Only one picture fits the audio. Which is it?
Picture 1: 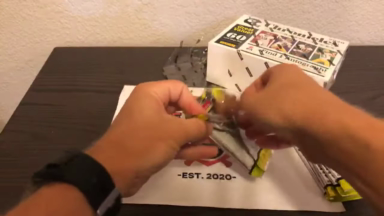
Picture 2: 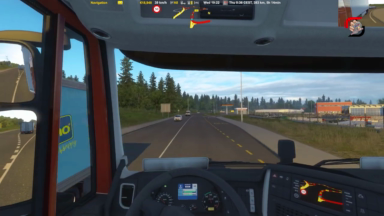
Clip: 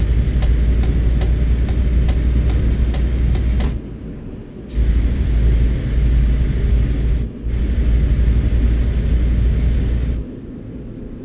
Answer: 2